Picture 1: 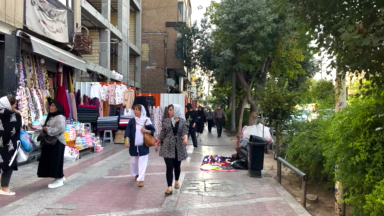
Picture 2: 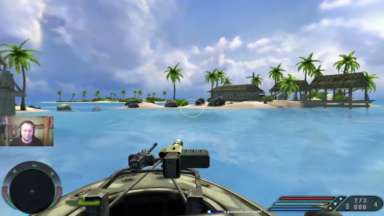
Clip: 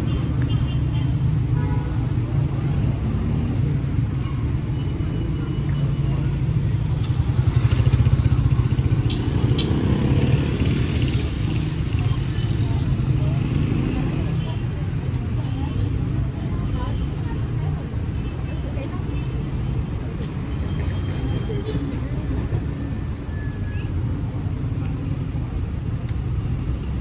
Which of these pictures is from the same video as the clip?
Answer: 1